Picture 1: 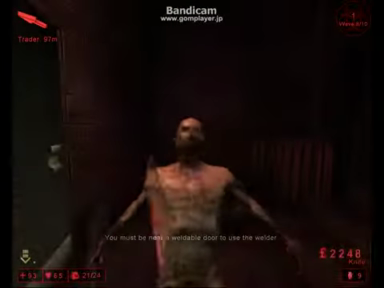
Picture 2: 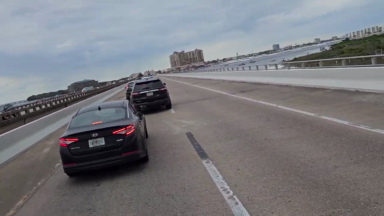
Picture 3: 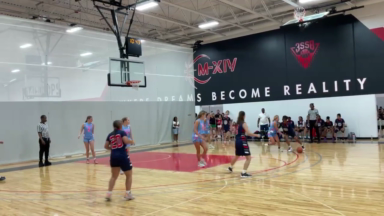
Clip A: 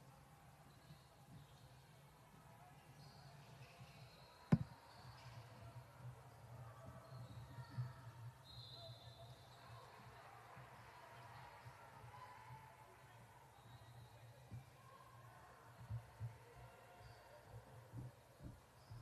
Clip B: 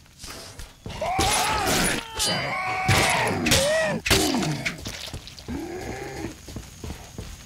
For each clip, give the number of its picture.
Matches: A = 3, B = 1